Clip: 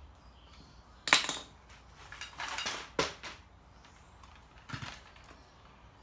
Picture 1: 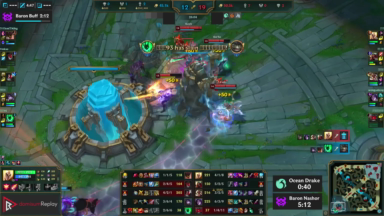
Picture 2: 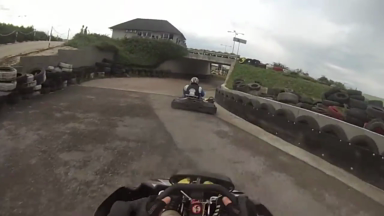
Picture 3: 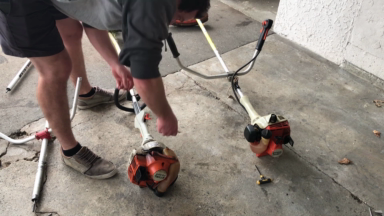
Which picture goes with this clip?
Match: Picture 3